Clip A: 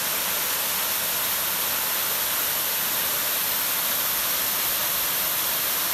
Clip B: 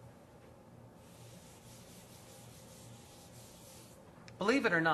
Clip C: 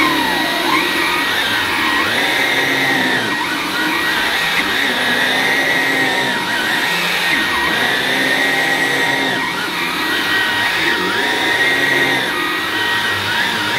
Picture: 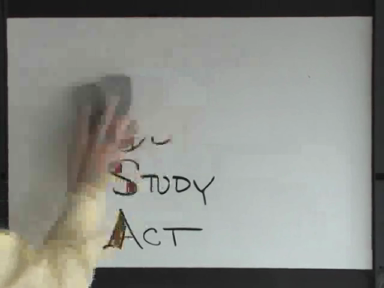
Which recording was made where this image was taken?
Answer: B